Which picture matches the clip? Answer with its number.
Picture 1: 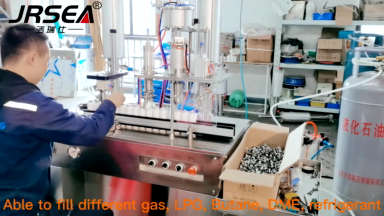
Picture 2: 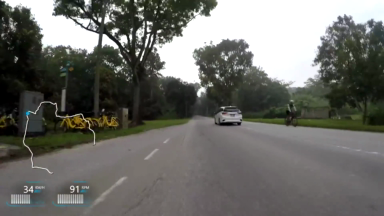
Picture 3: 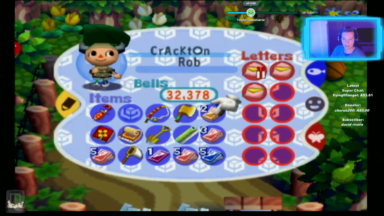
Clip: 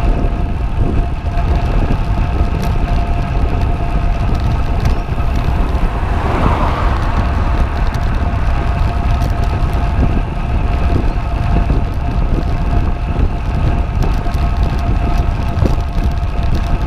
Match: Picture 2